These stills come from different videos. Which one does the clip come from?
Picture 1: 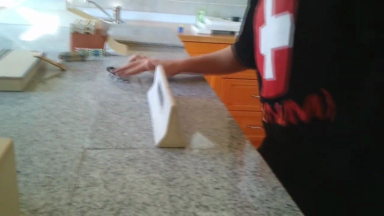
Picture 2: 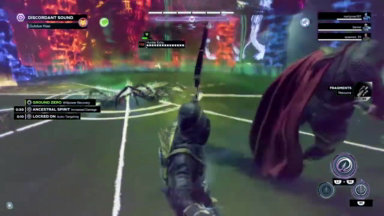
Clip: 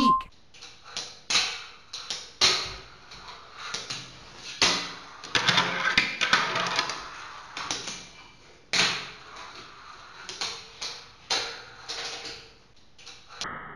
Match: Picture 1